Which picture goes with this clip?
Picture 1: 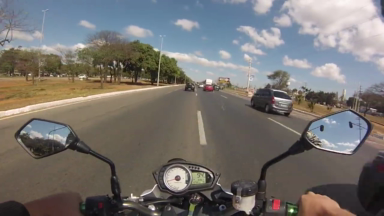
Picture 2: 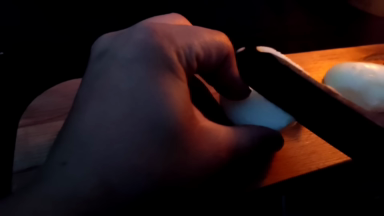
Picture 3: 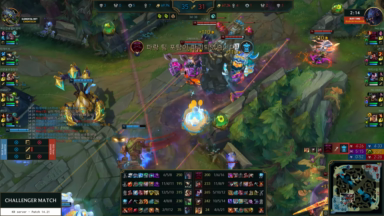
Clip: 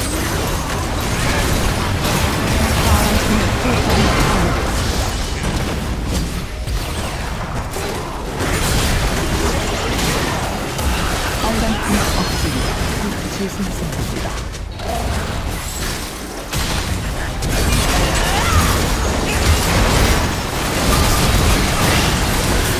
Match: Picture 3